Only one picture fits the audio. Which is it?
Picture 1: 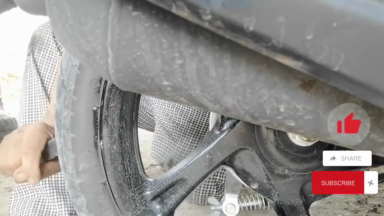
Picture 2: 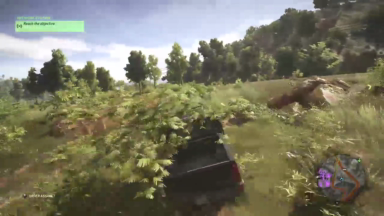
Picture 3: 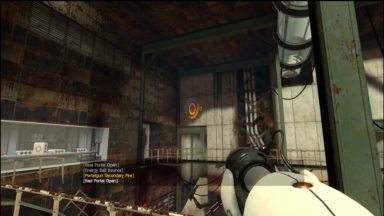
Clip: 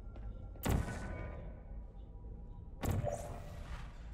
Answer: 3